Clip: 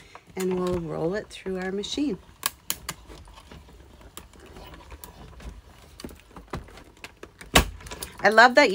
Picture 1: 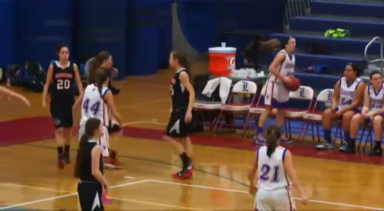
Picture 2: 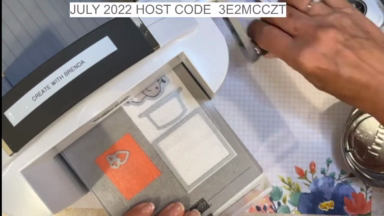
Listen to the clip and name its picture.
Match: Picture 2